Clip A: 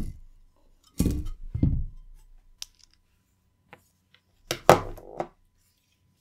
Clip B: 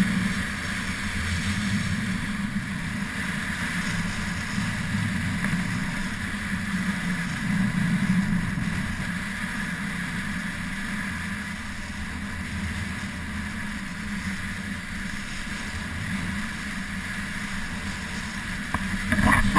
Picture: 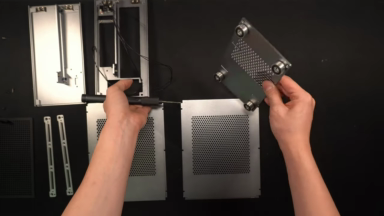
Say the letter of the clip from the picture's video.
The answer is A